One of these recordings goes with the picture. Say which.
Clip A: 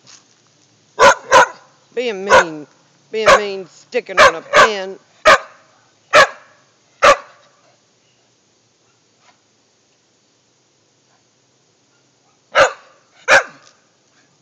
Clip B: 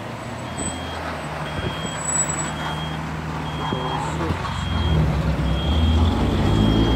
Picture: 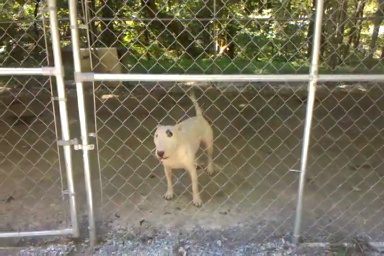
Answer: A